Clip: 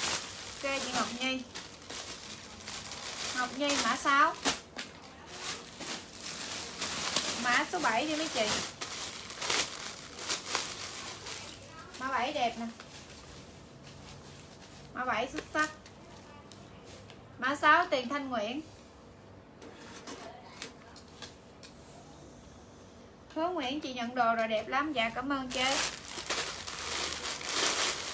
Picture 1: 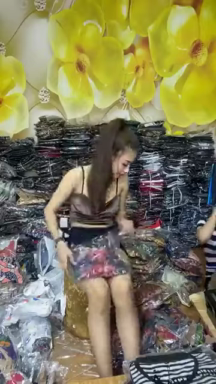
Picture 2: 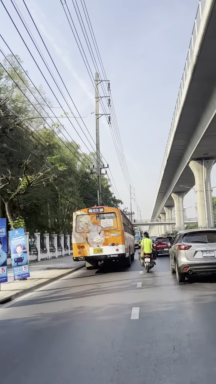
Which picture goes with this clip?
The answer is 1